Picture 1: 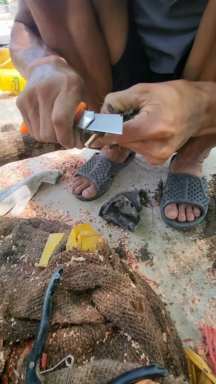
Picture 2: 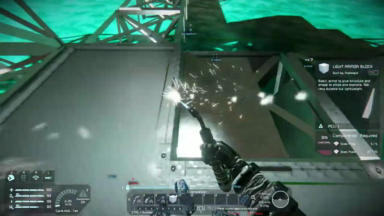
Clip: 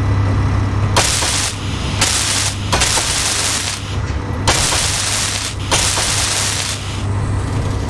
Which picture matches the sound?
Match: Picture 2